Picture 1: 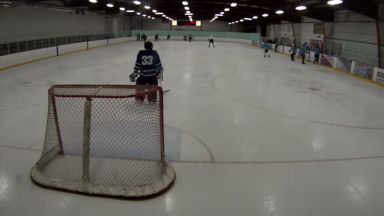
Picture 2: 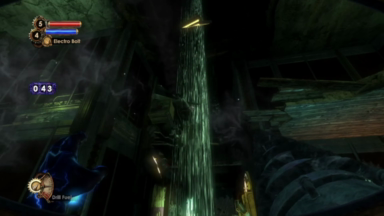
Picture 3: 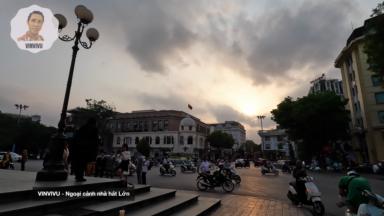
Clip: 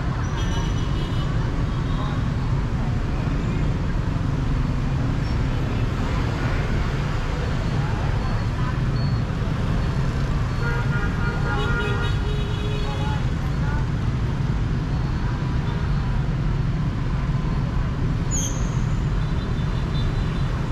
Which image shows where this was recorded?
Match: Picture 3